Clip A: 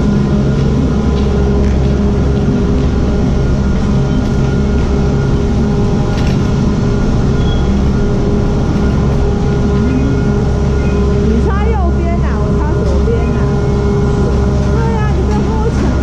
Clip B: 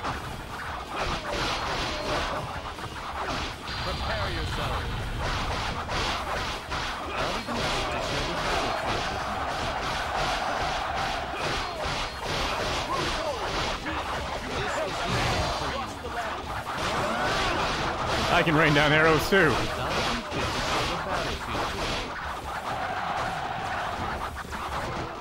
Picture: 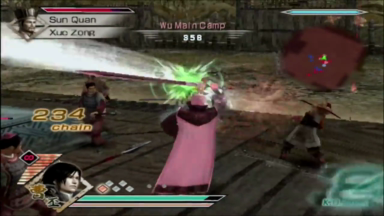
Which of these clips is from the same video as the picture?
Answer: B